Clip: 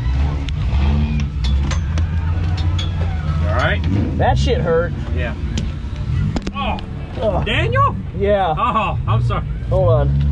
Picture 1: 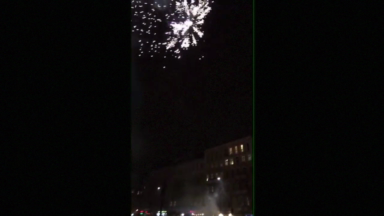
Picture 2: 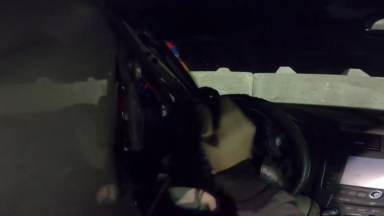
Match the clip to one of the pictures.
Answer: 2